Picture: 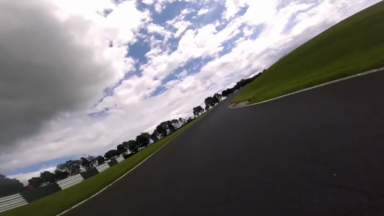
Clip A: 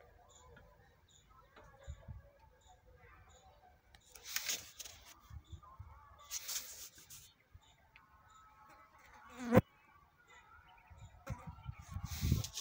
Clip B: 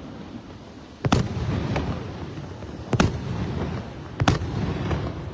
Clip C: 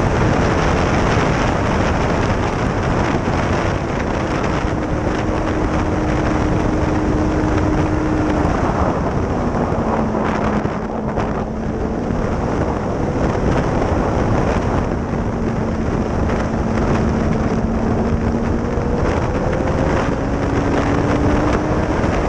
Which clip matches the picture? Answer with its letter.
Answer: C